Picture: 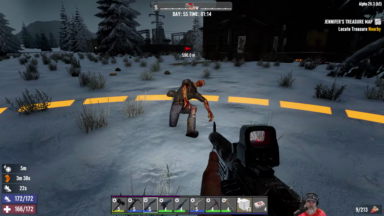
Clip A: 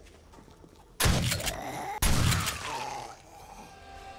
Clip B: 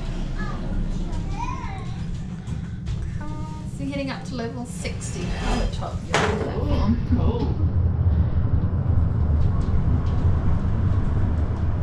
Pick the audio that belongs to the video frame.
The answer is A